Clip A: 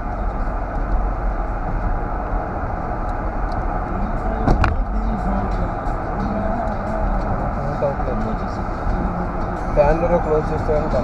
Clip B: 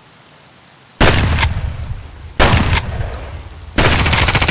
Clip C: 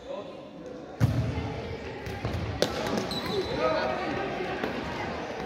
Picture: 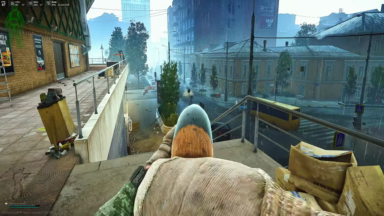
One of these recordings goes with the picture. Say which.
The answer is B